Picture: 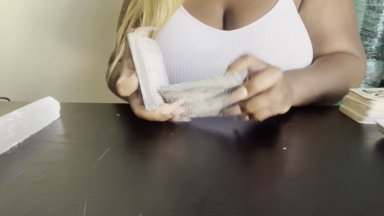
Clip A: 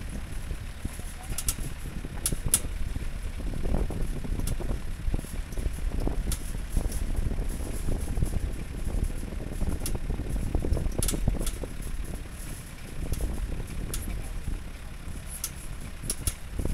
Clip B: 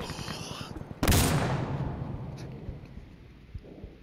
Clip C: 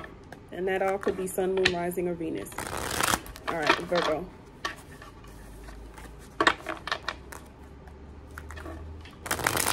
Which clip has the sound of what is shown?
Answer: C